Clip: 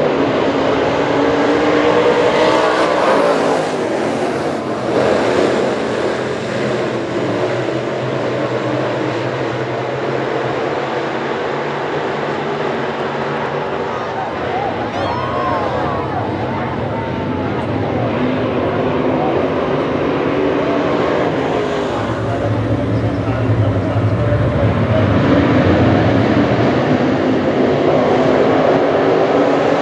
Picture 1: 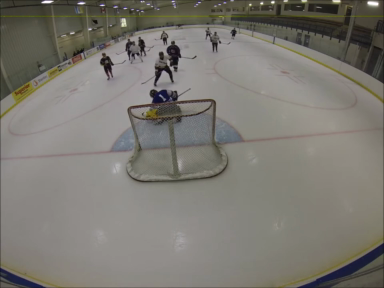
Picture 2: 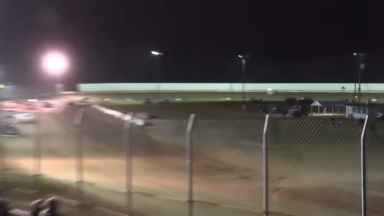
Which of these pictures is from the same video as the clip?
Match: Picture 2